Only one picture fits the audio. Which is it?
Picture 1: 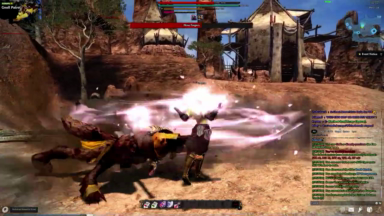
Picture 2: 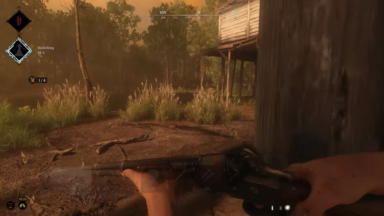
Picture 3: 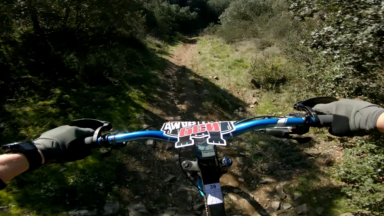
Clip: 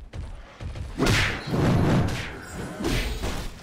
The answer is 1